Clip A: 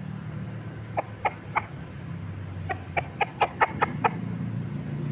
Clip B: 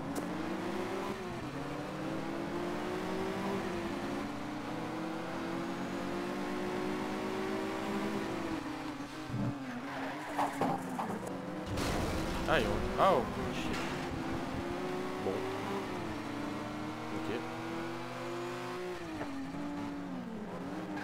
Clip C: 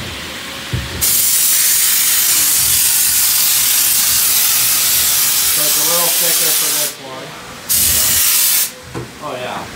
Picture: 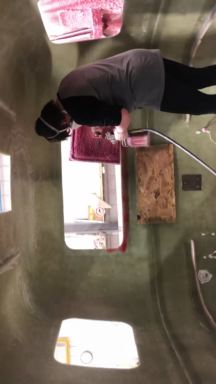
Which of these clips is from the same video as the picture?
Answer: C